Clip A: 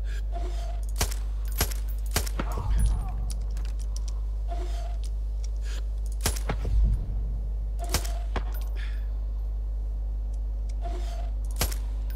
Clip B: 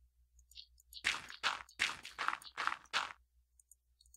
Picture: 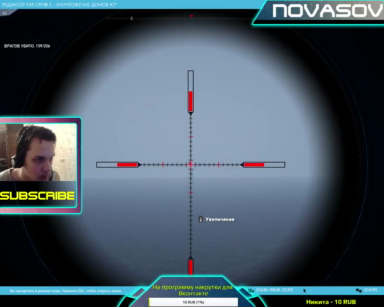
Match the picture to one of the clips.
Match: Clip A